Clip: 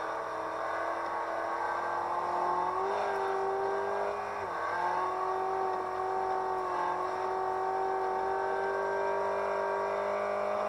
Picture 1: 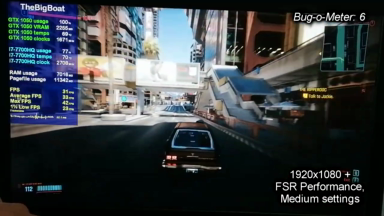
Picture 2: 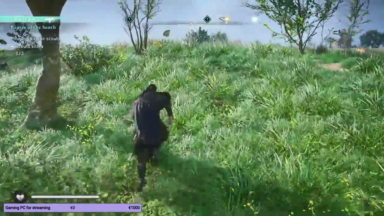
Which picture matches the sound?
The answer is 1